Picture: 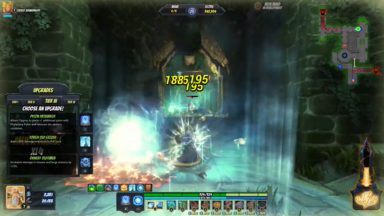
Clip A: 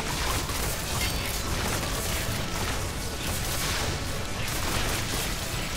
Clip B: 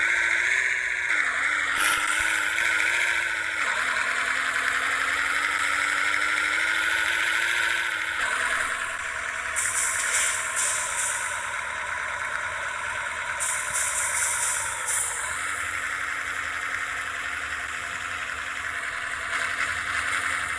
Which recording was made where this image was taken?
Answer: A